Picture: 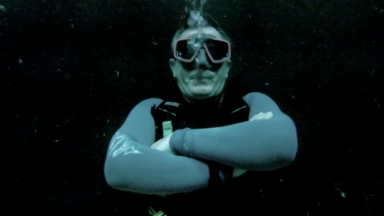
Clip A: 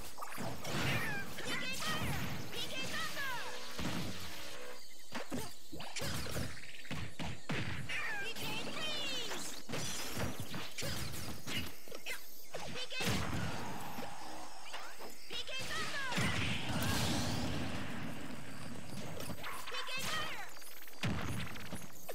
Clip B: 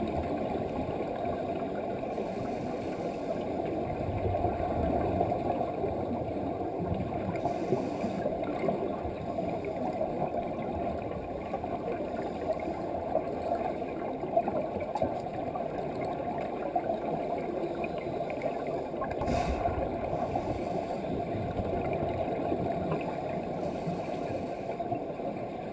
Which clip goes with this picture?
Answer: B